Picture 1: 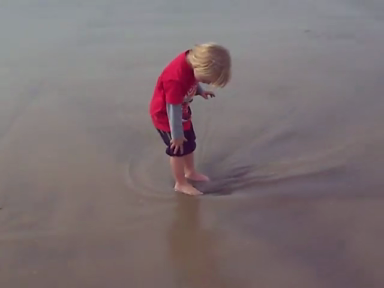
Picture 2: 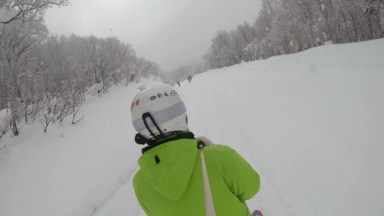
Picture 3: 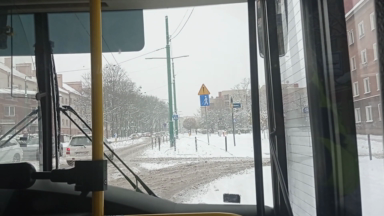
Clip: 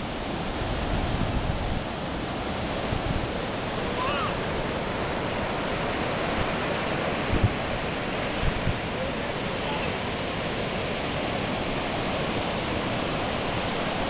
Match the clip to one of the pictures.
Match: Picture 1